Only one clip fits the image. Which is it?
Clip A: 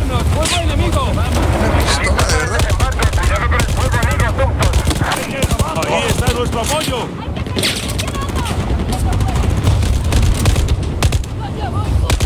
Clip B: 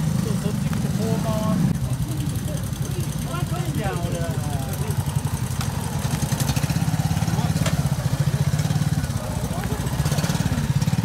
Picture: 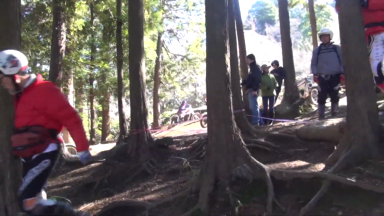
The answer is B